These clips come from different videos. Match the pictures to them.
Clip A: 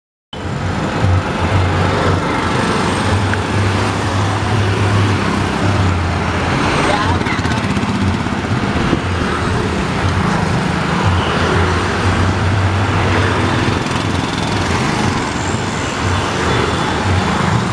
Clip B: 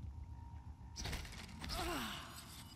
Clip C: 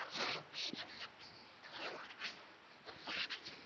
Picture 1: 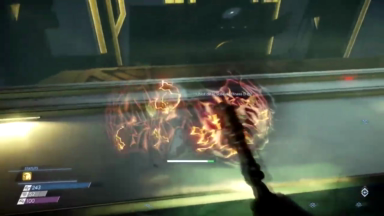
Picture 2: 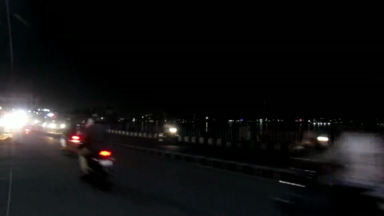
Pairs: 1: B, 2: A